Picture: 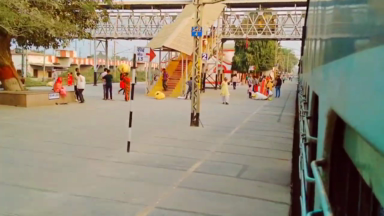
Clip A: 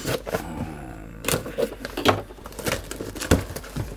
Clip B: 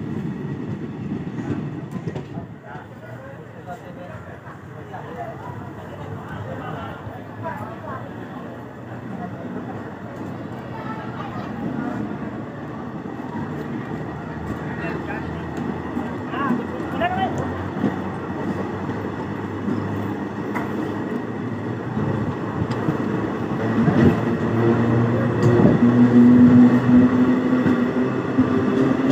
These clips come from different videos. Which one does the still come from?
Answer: B